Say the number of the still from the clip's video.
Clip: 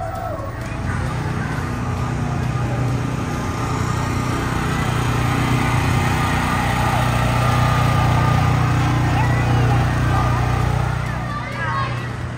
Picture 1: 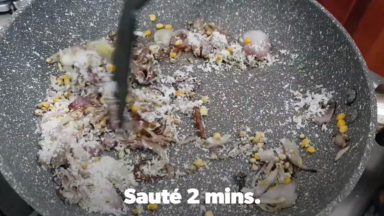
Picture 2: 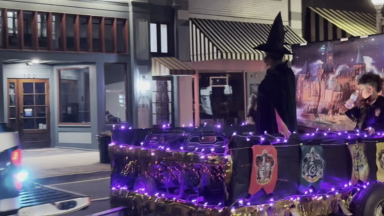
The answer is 2